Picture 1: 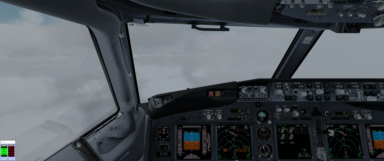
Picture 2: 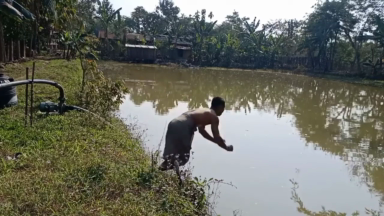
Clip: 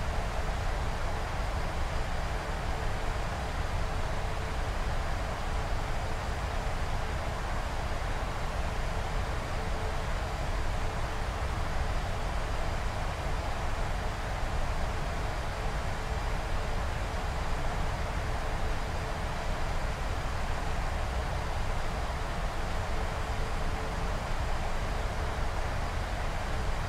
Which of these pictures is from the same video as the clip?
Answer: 1